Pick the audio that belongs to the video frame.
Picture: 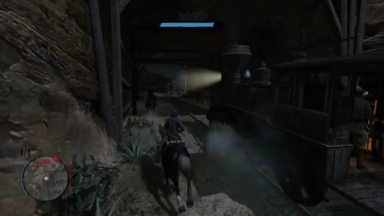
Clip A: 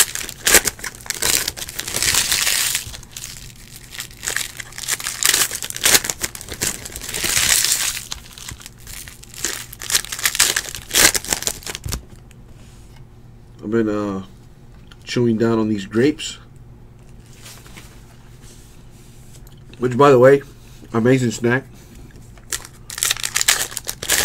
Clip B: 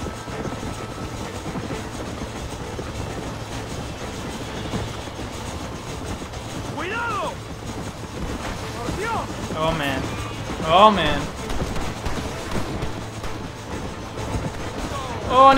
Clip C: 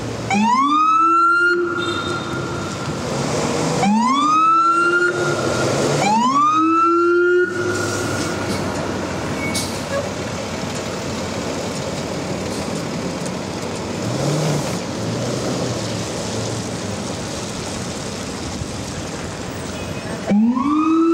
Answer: B